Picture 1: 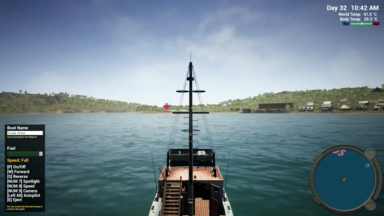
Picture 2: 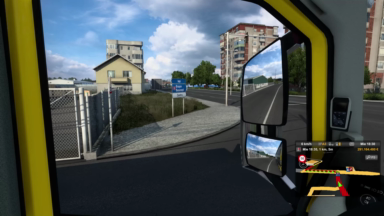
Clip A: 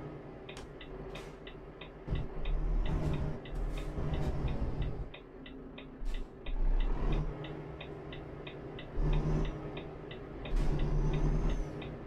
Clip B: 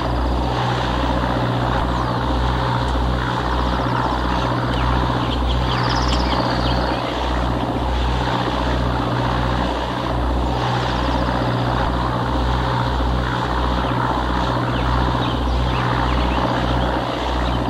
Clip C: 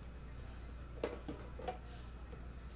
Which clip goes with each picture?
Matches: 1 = B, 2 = A